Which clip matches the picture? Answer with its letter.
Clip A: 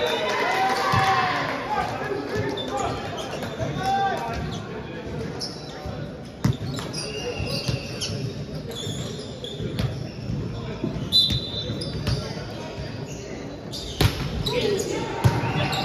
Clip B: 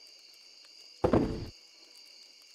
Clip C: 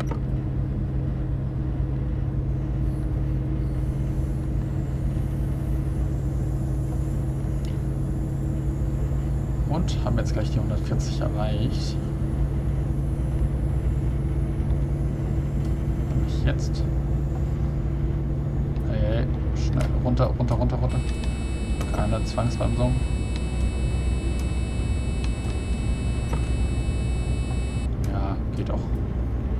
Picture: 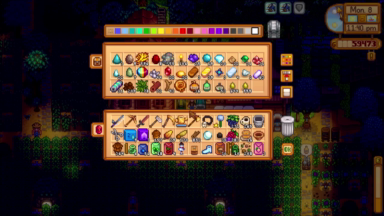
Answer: B